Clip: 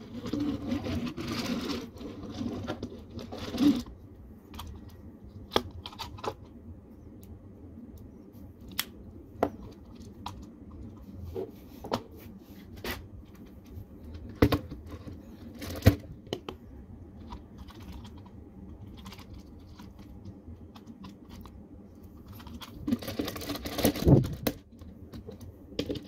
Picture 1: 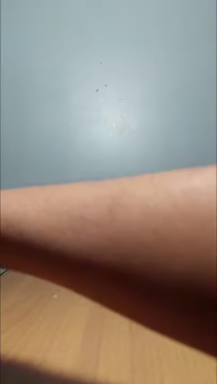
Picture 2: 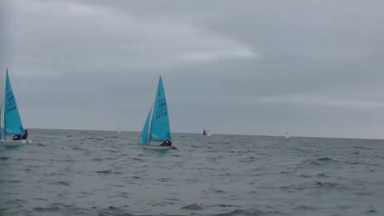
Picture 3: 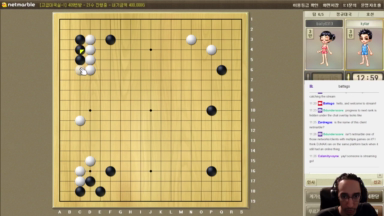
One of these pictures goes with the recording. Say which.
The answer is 1